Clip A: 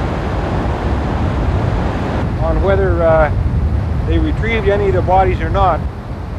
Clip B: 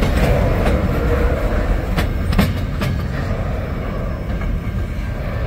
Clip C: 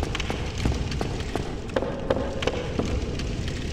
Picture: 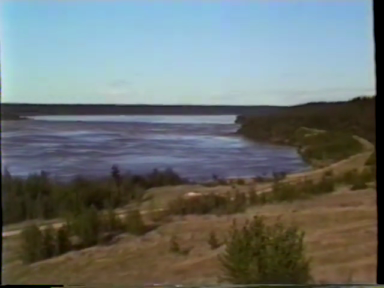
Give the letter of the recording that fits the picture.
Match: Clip A